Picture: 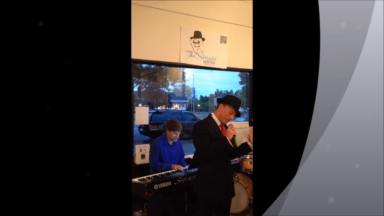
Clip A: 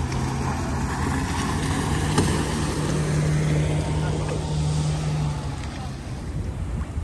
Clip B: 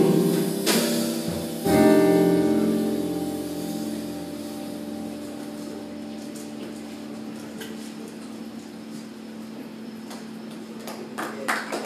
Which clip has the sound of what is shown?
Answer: B